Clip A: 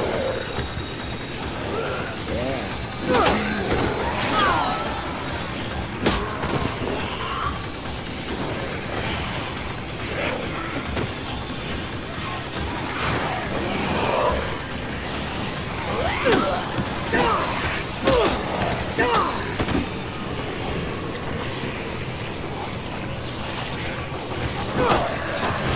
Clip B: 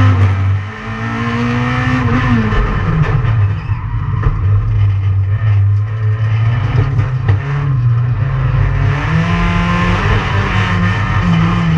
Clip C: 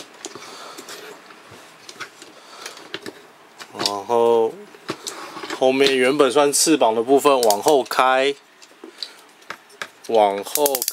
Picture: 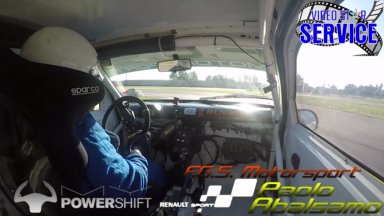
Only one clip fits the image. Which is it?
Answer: B